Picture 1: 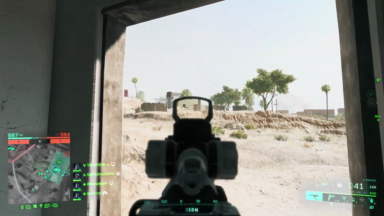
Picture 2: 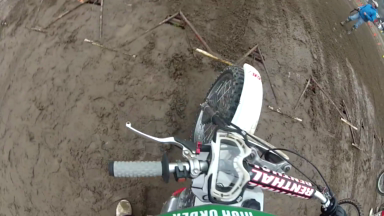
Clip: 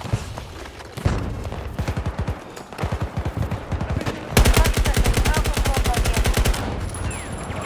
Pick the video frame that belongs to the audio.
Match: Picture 1